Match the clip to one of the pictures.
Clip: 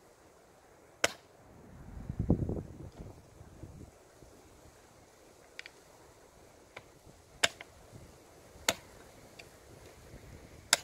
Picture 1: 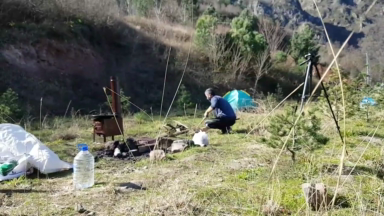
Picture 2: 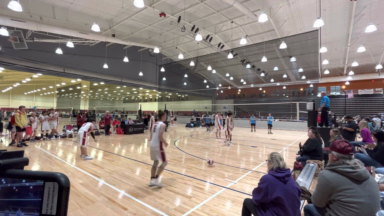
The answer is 1